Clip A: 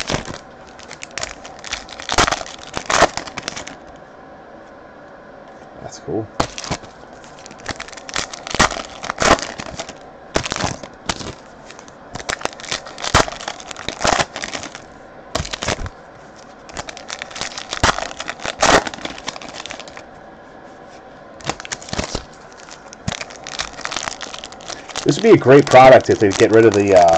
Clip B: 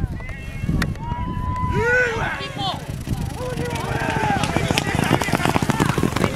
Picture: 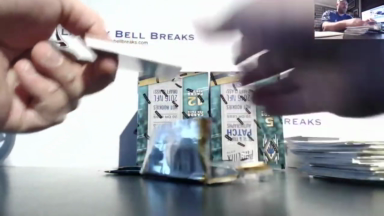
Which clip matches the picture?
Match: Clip A